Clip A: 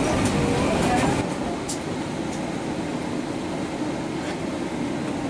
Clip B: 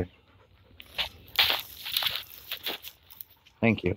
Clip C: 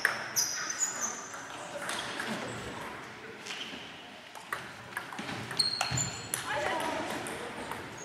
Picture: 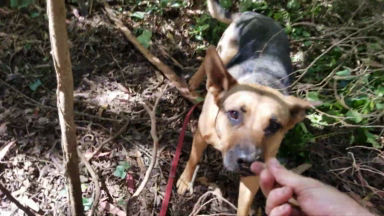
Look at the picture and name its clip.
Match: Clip B